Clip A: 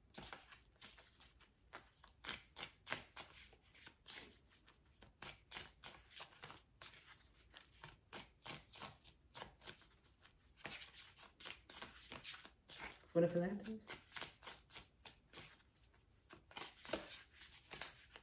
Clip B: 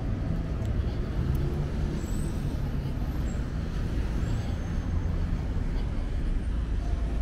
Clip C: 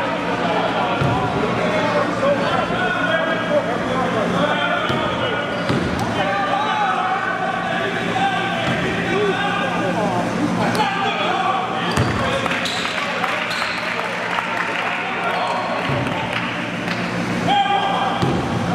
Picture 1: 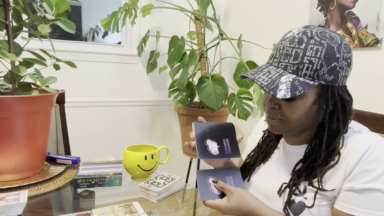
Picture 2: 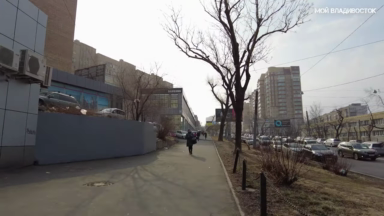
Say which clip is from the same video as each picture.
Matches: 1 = A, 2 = B